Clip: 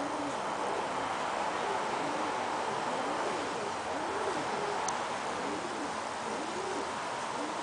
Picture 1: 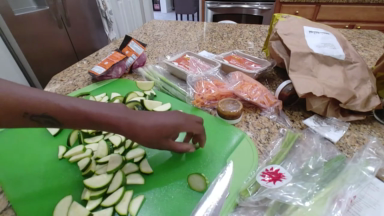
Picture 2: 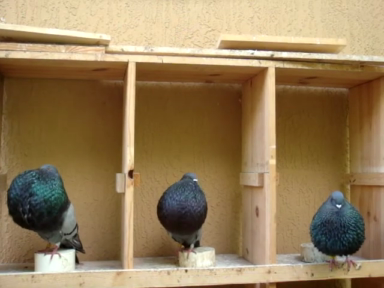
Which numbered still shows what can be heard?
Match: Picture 2